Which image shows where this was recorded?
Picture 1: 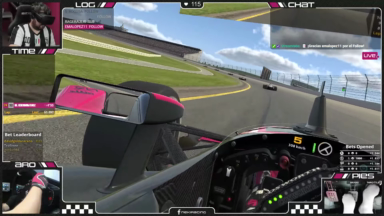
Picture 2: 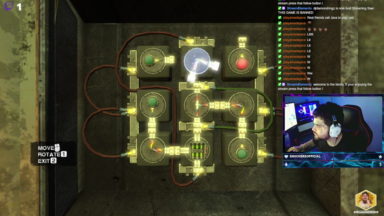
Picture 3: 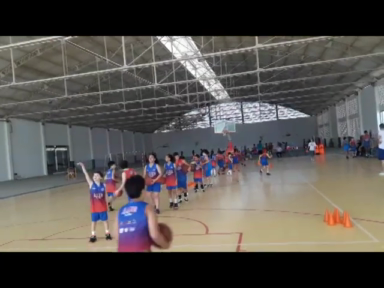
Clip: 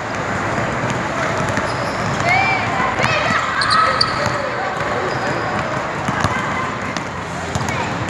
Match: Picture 3